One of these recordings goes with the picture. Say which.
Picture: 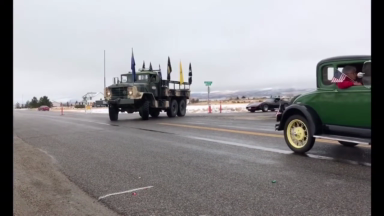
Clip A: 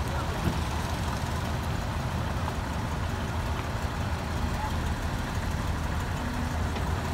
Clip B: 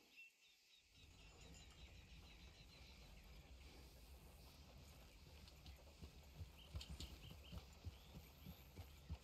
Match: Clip A